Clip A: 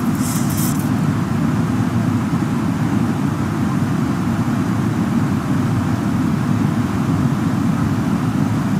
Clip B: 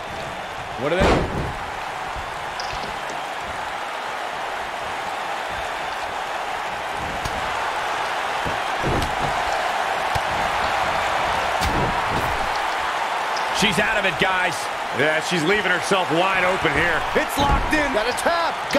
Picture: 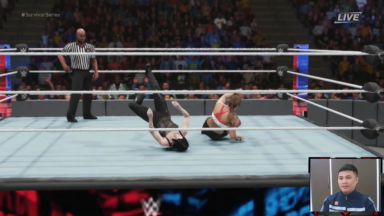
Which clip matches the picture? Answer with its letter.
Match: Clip B